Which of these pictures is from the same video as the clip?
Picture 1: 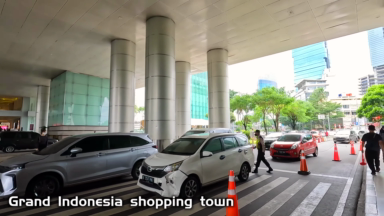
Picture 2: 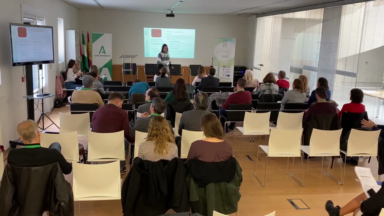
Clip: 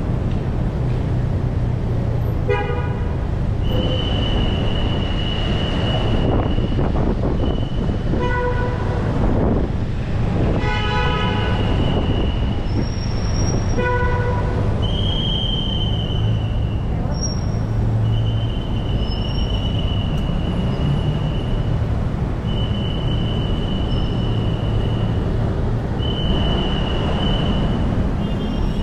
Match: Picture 1